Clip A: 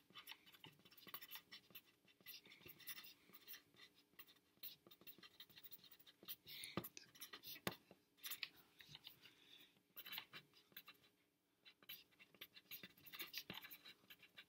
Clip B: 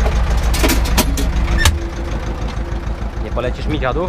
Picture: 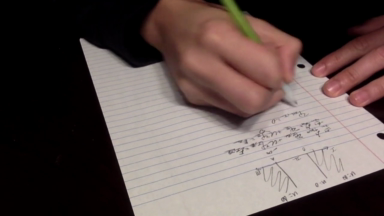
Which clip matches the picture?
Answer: A